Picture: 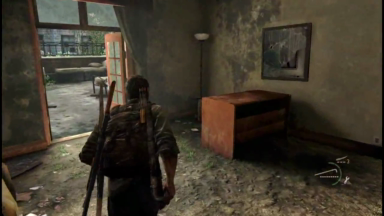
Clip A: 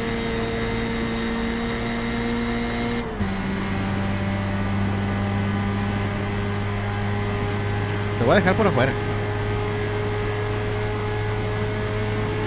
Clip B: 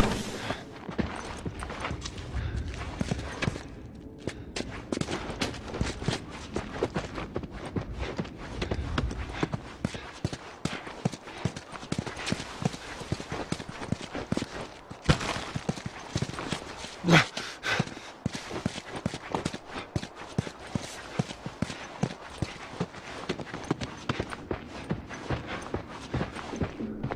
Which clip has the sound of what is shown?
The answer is B